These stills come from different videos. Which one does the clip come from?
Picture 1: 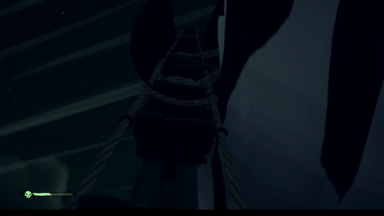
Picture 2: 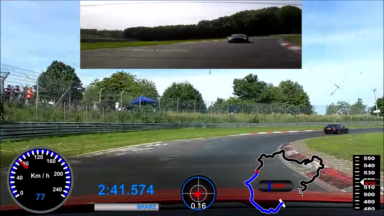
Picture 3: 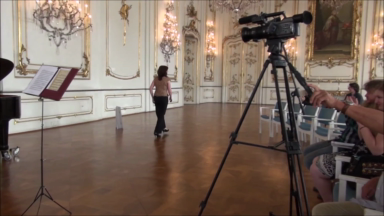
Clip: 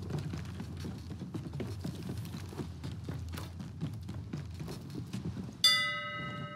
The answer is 1